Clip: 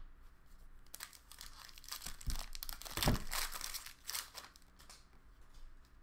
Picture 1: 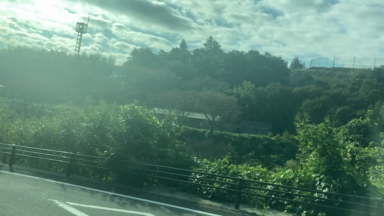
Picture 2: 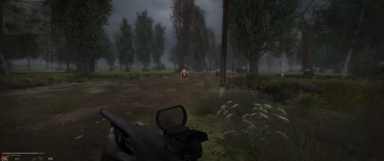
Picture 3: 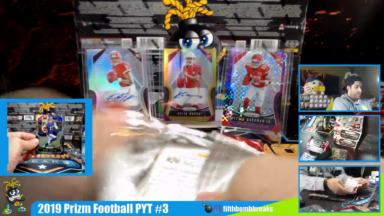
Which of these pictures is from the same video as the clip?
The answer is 3